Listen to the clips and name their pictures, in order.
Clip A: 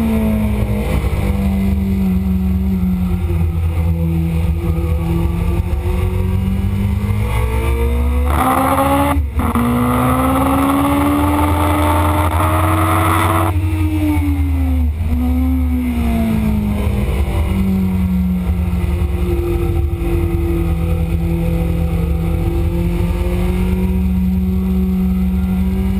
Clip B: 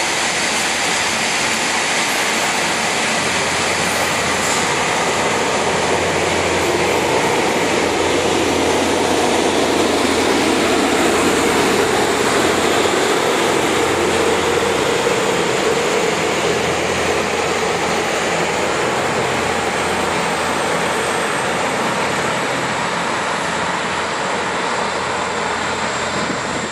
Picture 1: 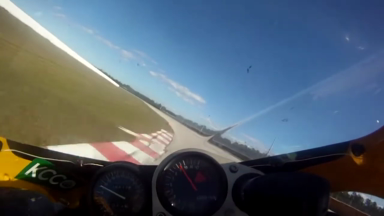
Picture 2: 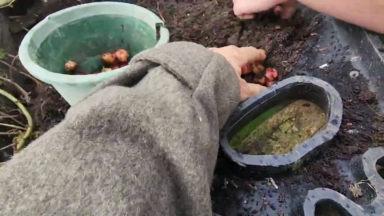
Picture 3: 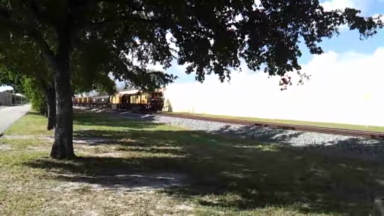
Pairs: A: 1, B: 3